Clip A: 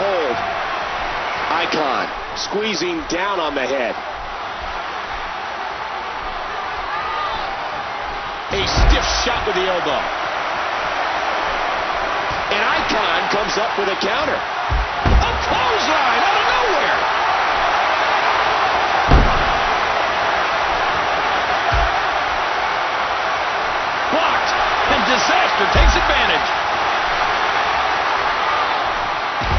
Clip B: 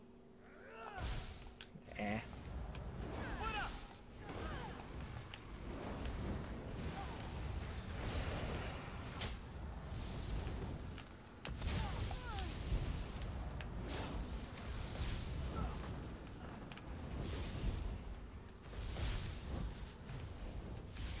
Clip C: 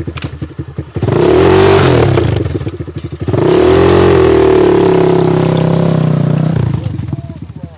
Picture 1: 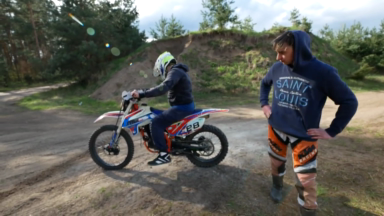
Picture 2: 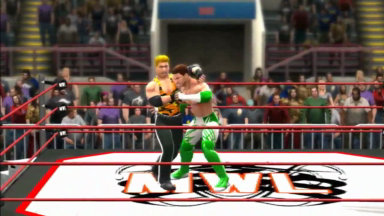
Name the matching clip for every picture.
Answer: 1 C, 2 A